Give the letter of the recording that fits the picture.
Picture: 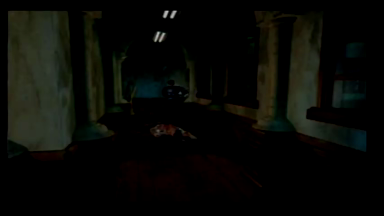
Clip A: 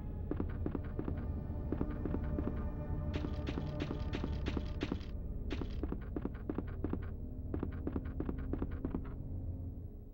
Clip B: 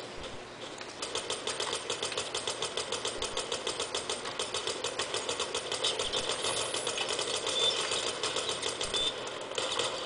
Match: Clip A